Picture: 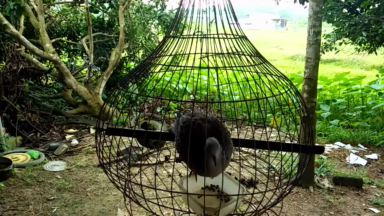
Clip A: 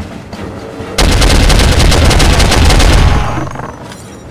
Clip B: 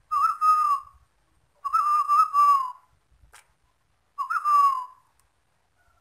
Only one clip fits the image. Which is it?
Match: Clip B